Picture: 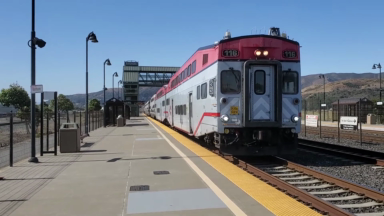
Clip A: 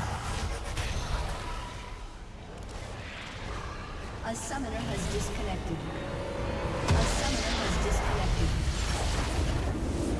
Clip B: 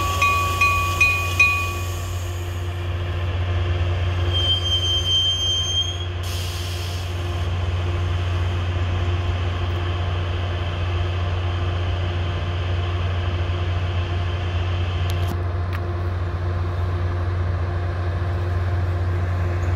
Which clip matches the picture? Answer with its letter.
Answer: B